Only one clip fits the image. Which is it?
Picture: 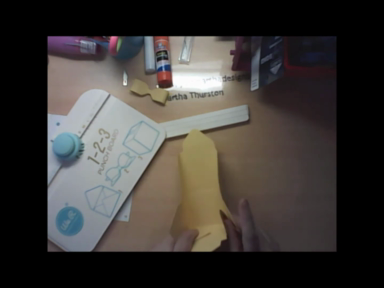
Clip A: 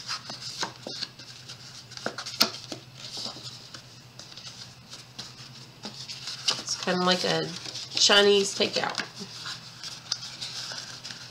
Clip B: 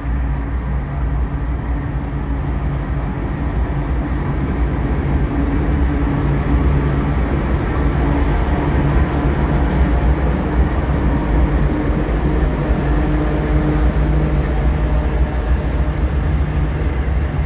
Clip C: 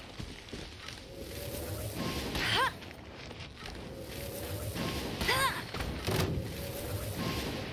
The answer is A